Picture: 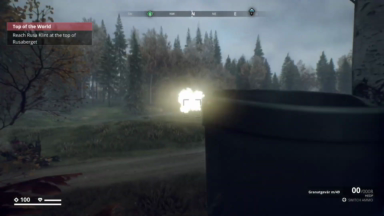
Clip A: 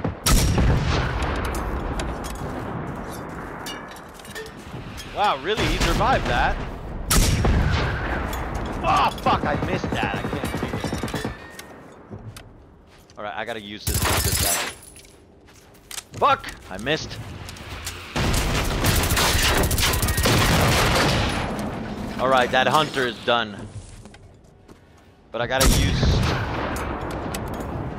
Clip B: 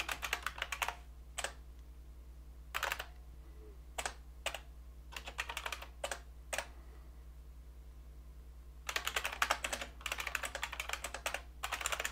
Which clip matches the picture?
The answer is A